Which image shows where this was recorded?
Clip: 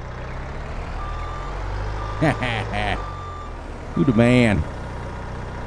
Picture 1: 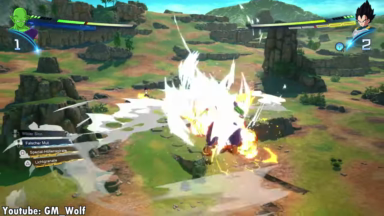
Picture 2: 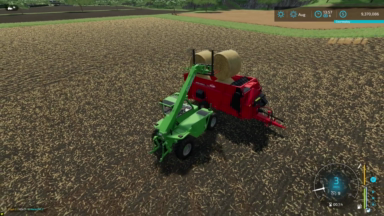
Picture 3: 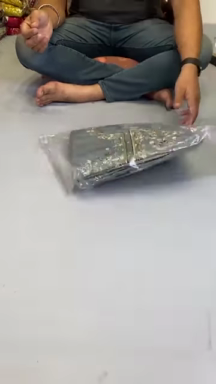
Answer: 2